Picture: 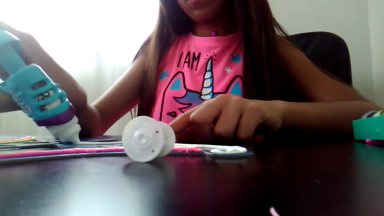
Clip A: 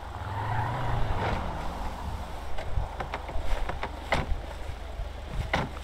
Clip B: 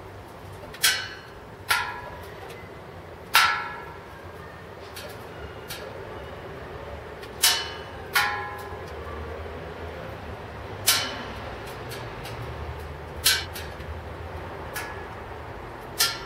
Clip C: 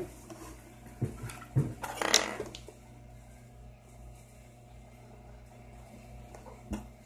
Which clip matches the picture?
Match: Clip C